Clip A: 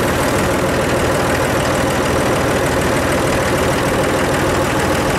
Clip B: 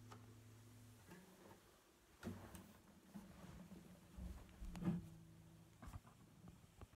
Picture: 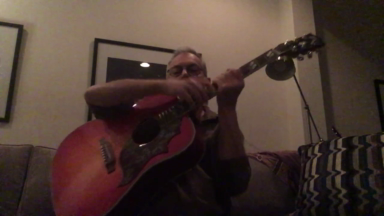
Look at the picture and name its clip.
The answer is B